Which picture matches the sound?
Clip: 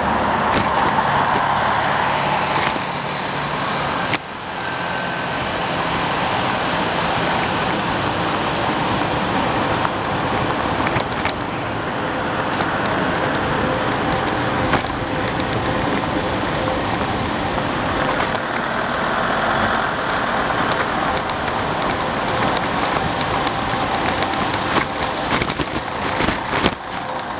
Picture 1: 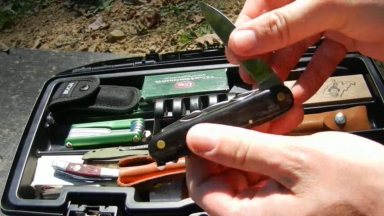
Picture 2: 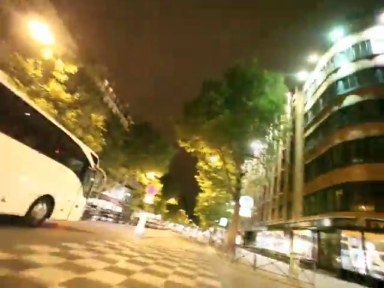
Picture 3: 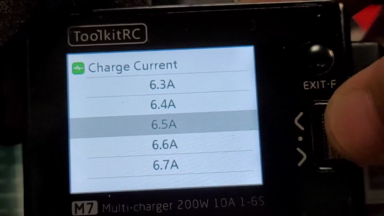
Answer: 2